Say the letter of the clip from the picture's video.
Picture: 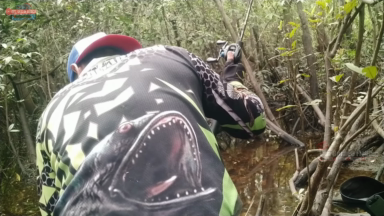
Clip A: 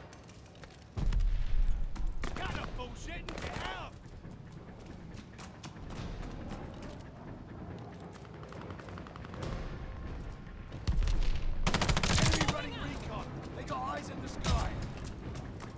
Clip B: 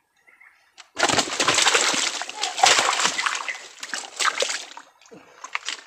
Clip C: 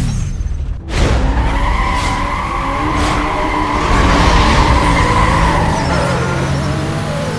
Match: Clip B